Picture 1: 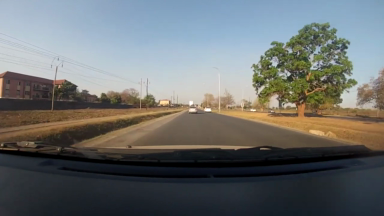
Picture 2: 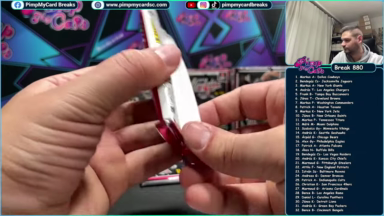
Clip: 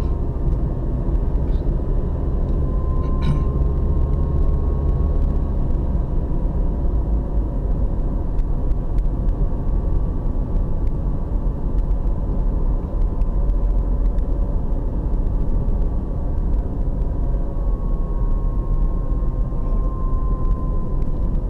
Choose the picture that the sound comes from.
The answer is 1